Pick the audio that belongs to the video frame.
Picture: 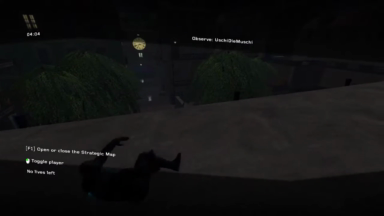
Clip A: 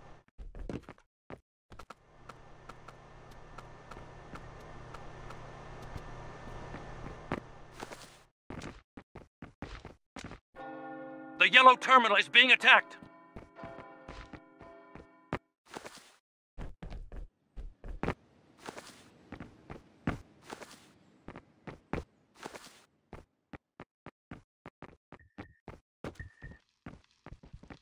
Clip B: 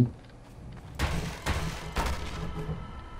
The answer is A